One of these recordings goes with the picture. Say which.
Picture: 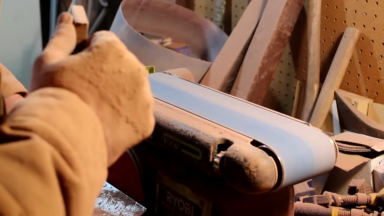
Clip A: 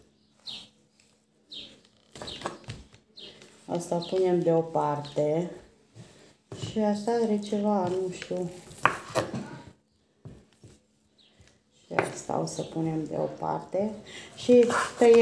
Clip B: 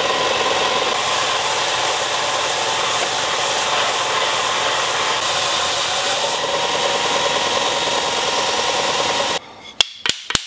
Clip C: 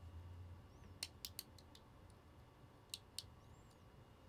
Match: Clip B